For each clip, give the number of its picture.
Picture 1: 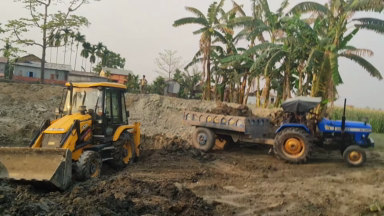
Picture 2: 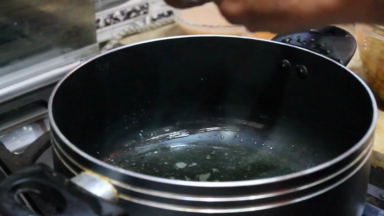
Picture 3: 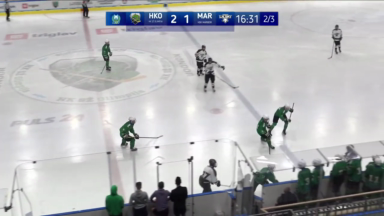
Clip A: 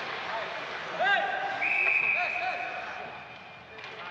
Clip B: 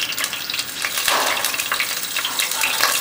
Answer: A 3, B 2